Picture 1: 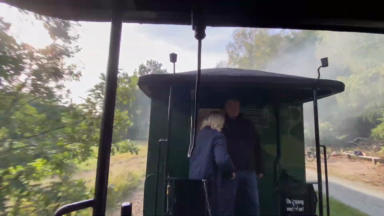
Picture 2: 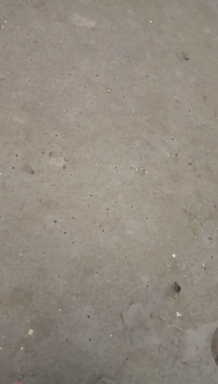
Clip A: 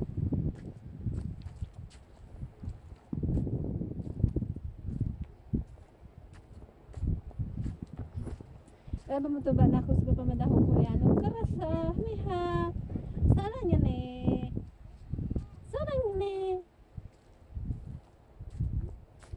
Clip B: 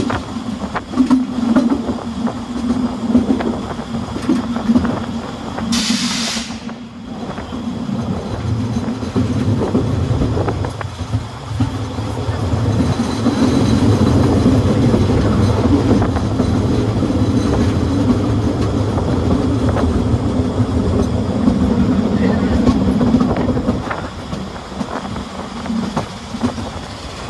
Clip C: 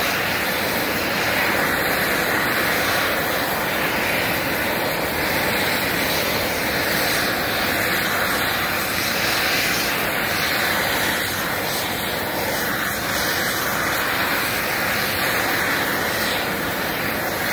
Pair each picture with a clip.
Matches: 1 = B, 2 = A